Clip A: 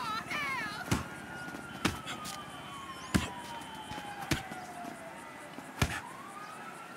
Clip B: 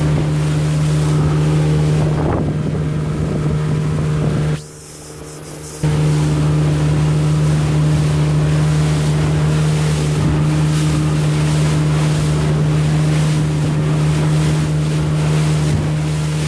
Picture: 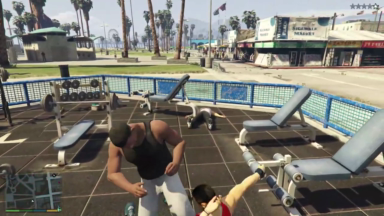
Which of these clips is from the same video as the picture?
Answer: A